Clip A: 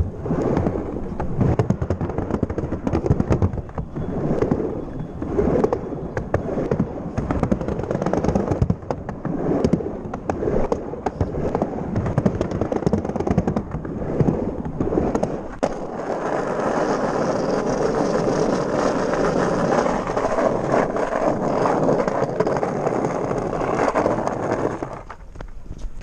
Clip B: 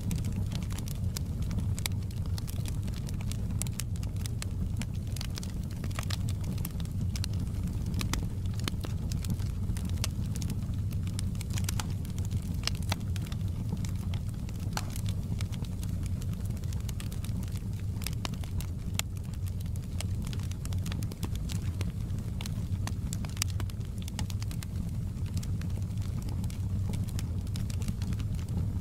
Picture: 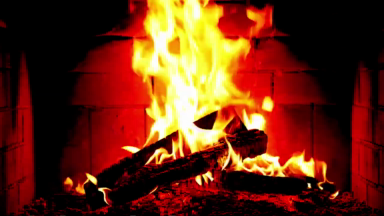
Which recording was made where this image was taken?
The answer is B